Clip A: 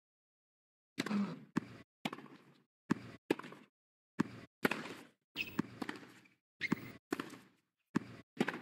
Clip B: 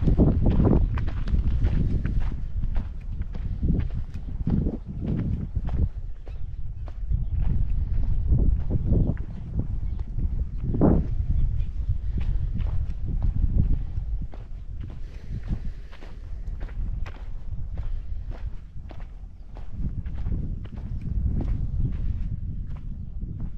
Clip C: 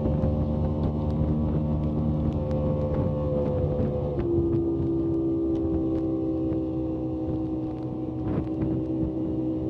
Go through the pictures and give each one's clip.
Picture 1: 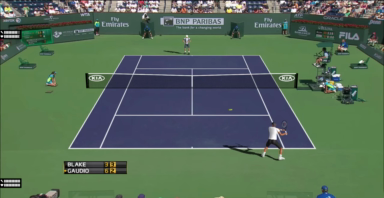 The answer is A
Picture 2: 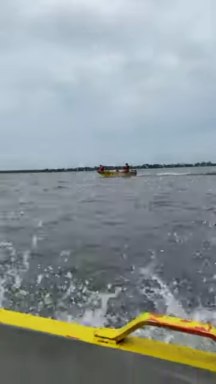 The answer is C